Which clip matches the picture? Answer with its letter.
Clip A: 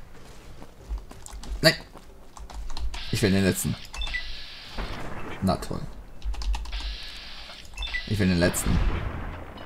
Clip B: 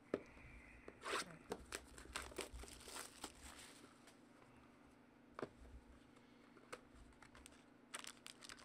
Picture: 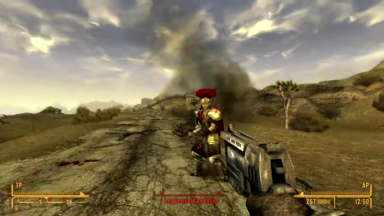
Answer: A